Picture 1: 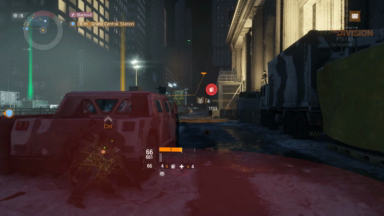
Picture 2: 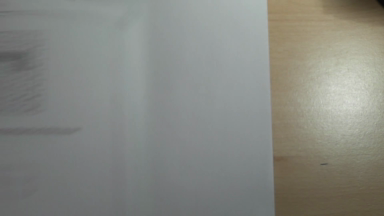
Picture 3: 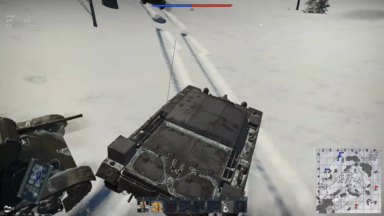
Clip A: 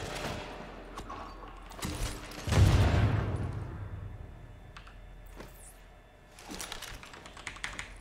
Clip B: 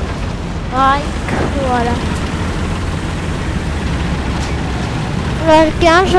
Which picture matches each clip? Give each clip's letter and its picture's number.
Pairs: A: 1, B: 3